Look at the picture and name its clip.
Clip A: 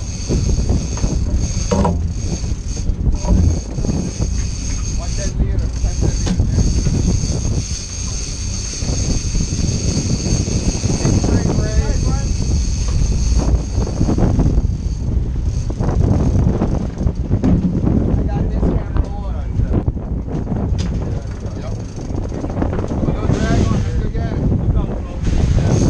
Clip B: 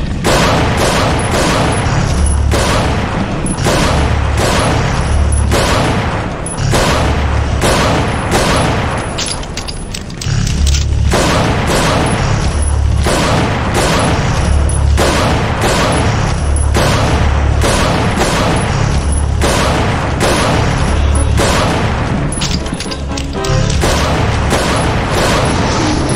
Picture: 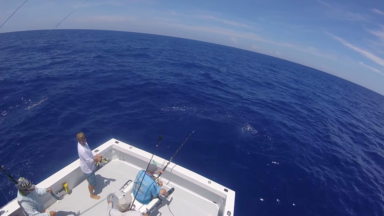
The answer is A